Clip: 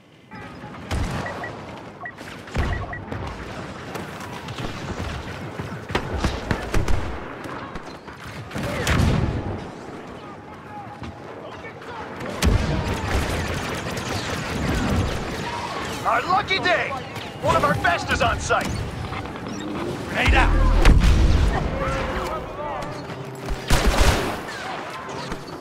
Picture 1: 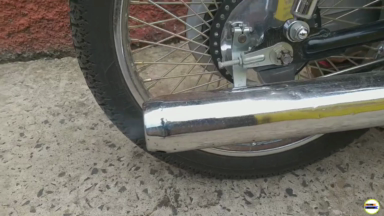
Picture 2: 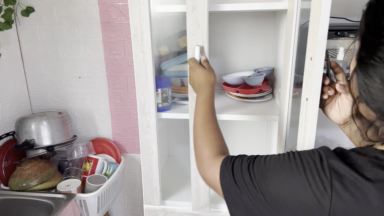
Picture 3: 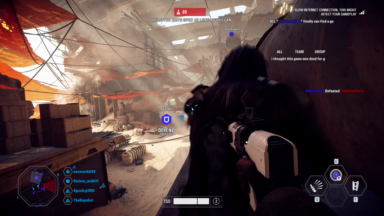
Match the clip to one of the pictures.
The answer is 3